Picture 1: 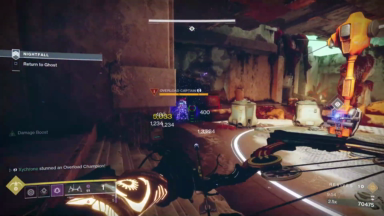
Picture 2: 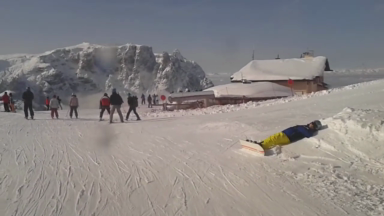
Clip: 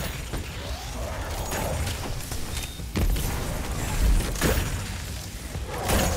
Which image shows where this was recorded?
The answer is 1